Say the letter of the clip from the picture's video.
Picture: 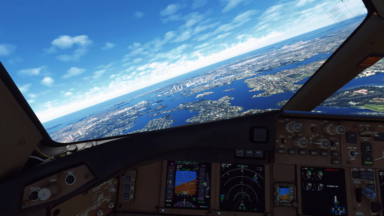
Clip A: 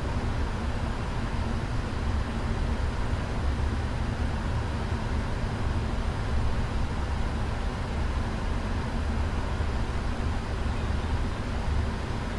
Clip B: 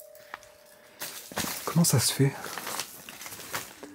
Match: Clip A